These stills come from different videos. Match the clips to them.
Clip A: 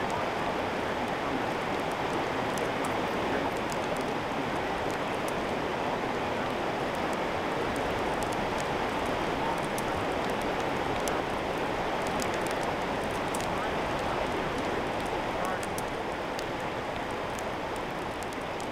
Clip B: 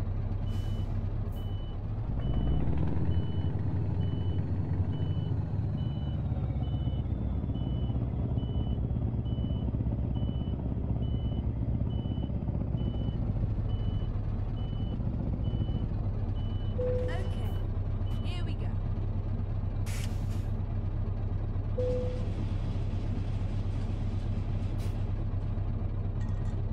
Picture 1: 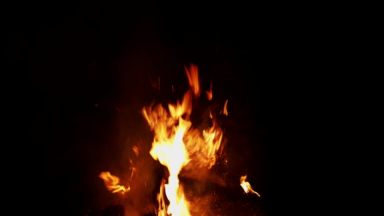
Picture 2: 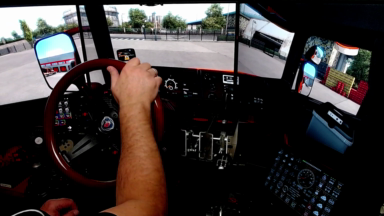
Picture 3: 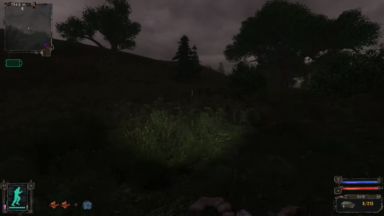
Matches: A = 1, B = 2